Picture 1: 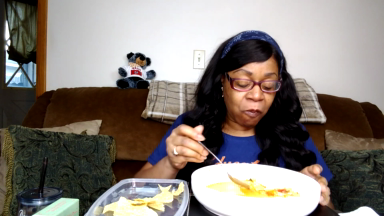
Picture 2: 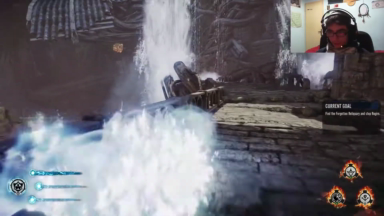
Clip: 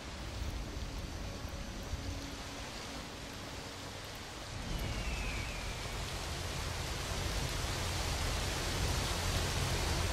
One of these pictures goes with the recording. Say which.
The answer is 2